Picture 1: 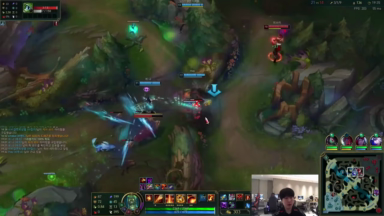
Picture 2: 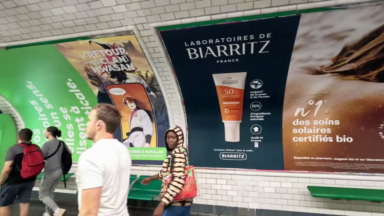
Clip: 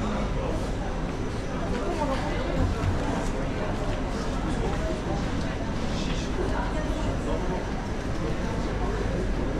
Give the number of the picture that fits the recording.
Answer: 2